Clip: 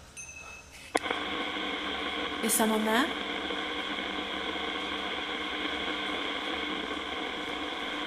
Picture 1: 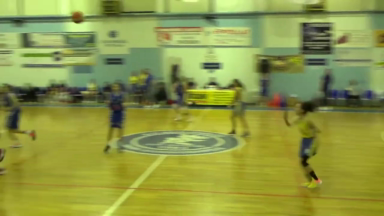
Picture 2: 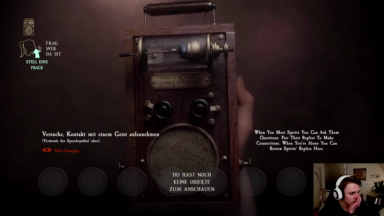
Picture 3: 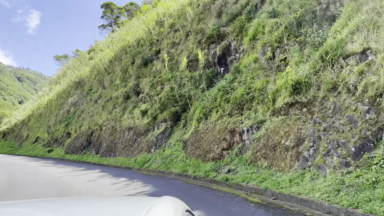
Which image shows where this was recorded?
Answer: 2